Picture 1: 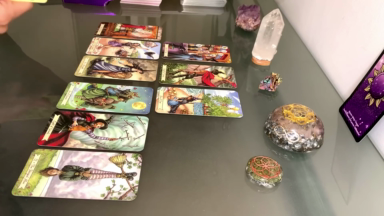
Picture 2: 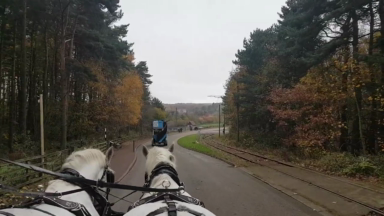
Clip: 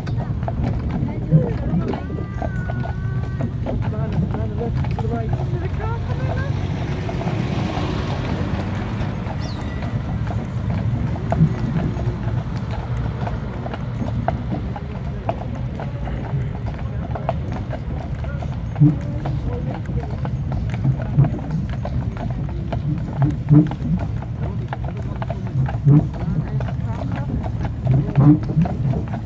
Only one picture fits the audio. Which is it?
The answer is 2